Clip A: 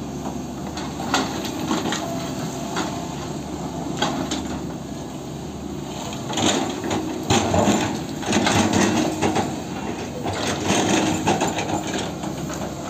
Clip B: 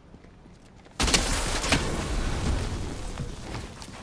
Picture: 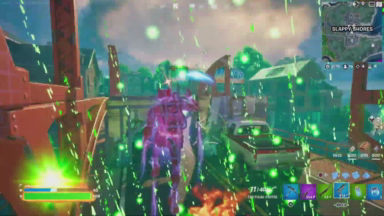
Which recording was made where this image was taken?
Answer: B